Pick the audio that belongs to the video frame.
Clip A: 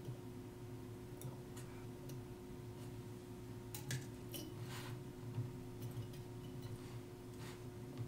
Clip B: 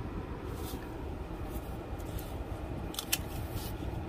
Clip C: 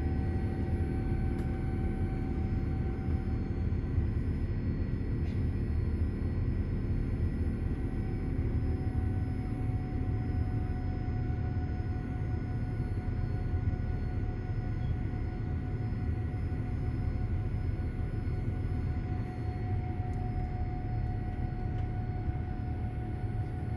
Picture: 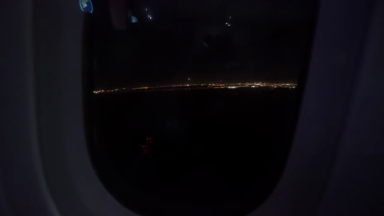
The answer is C